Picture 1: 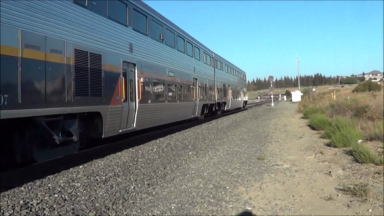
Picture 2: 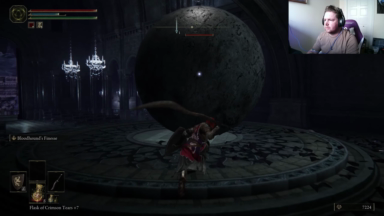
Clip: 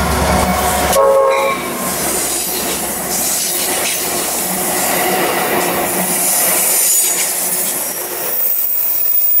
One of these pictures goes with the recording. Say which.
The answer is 1